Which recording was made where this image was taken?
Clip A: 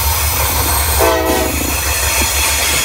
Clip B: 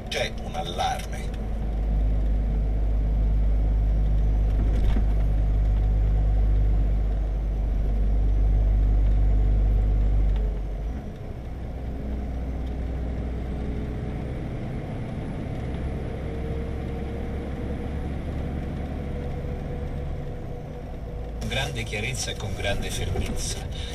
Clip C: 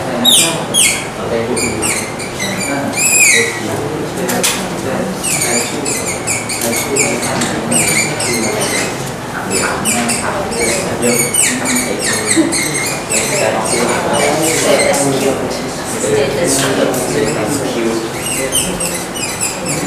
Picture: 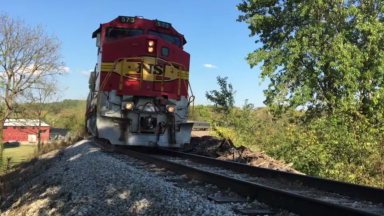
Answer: A